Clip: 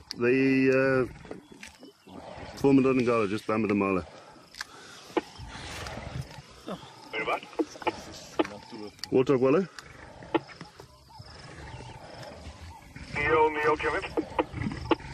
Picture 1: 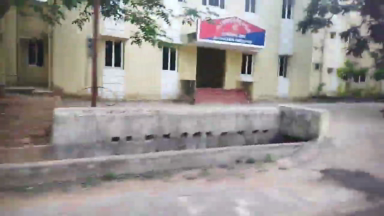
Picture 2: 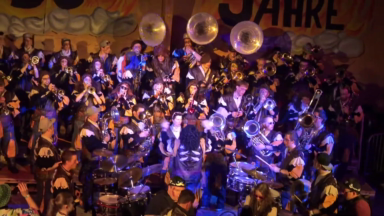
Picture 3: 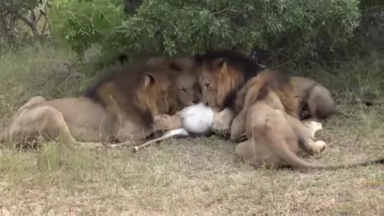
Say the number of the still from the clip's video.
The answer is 3